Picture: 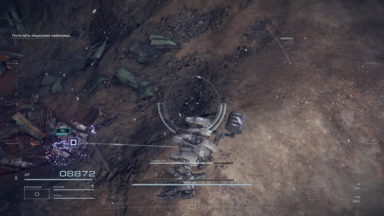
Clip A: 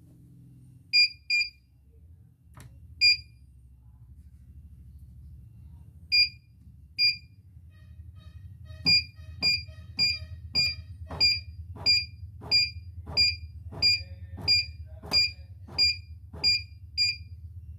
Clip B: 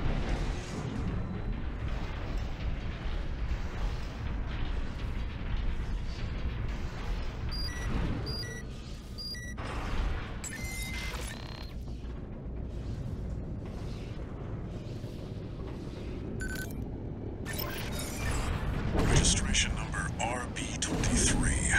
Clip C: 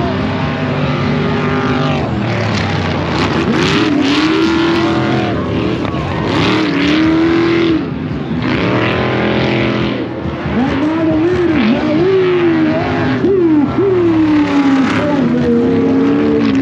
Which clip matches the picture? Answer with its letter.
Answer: B